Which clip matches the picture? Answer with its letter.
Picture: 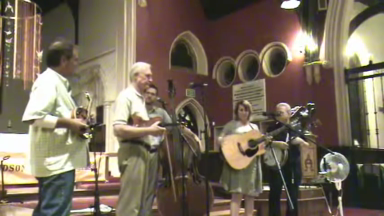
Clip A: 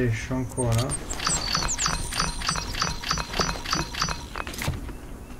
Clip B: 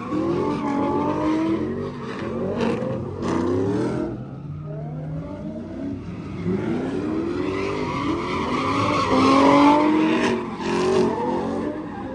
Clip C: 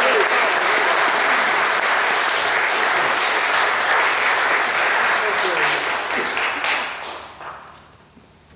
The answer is C